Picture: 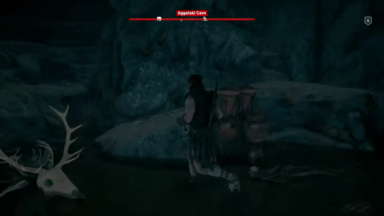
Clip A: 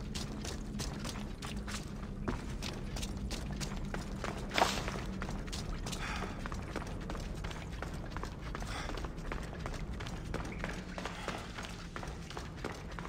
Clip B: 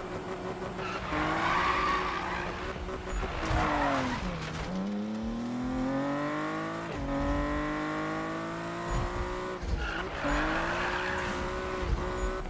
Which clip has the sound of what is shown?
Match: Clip A